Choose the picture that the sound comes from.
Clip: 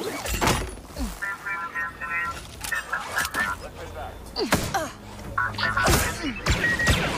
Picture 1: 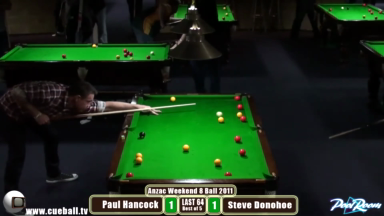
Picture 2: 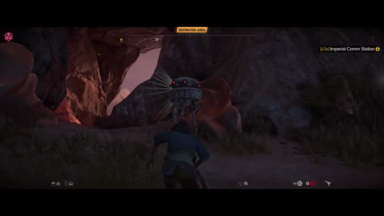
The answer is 2